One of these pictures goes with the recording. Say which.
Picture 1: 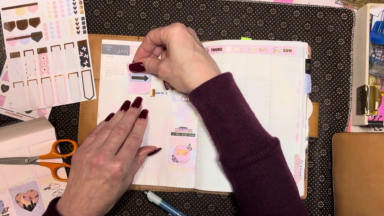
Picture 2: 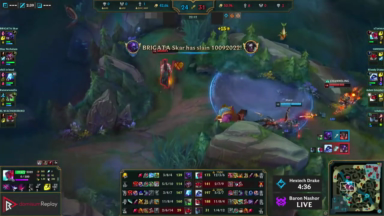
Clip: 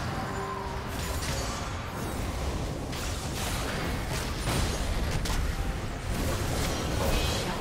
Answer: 2